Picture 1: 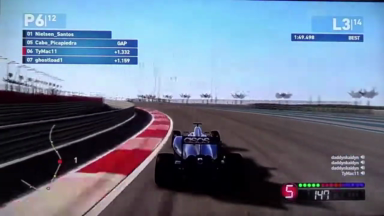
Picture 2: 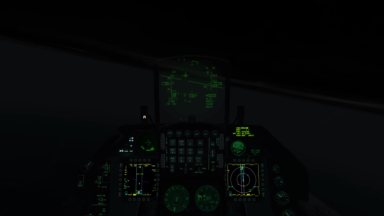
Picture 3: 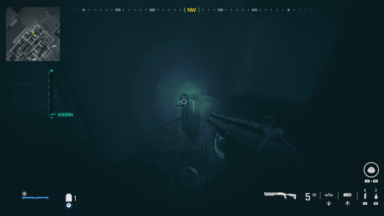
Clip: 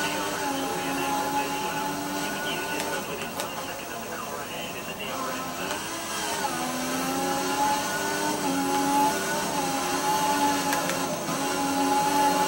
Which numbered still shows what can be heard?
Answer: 1